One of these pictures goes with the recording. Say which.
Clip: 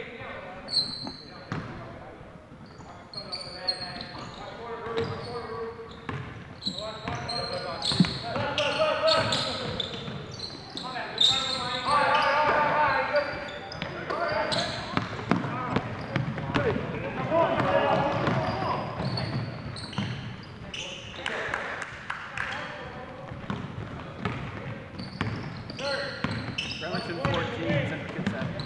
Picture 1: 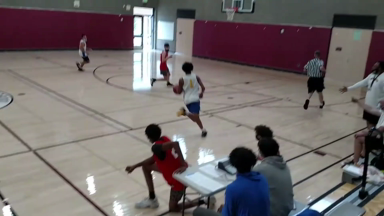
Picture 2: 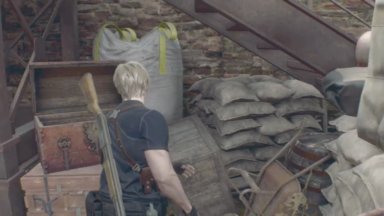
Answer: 1